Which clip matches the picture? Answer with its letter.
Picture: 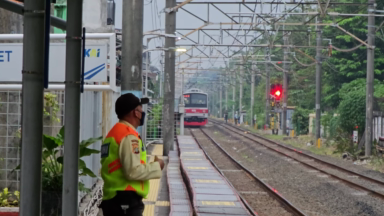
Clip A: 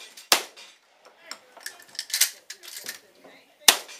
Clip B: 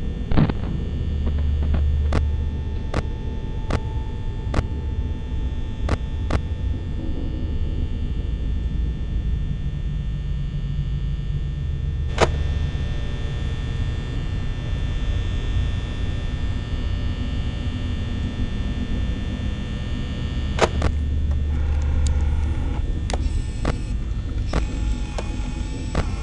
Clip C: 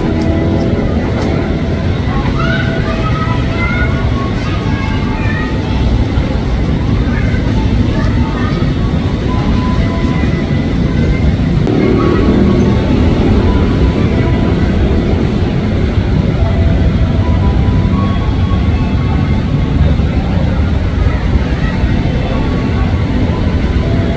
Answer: C